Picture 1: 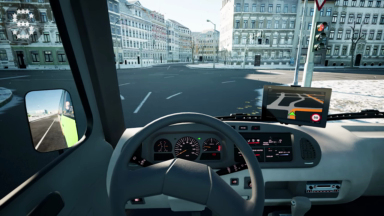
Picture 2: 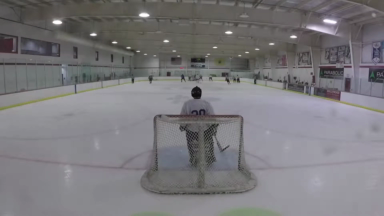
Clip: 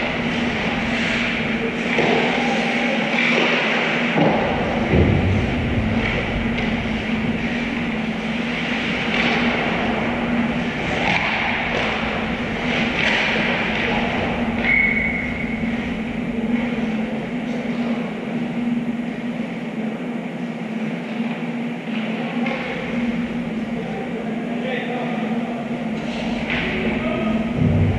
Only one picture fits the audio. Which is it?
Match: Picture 2